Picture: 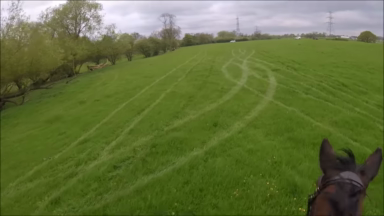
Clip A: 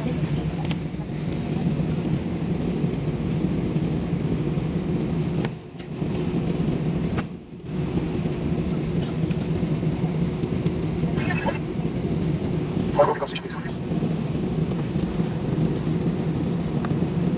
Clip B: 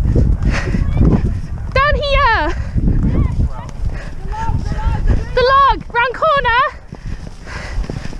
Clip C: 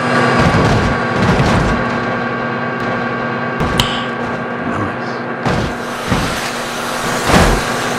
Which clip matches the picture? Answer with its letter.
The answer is B